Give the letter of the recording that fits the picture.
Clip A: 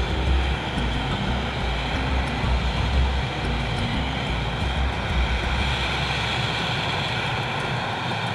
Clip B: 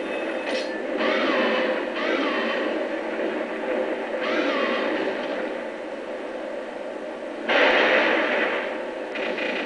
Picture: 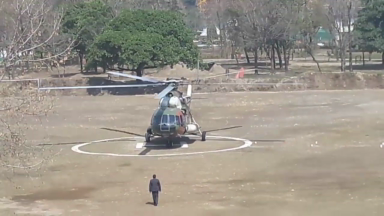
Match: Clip A